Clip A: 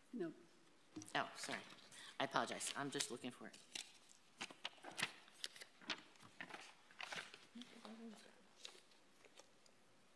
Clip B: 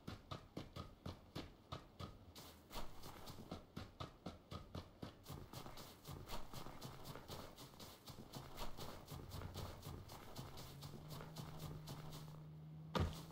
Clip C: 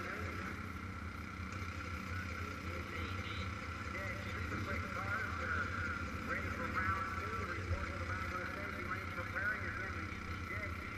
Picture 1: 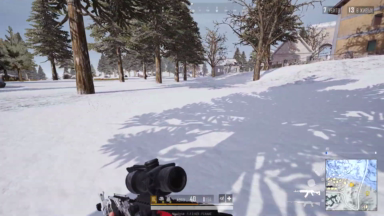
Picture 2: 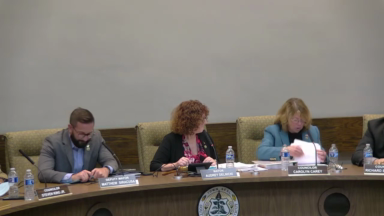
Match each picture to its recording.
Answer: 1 B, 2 A